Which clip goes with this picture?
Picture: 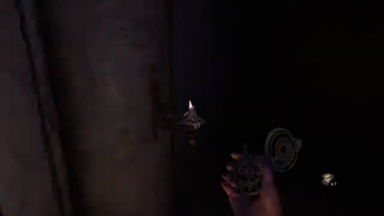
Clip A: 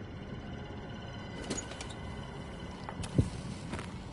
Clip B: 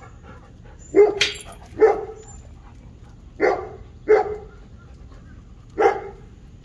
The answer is A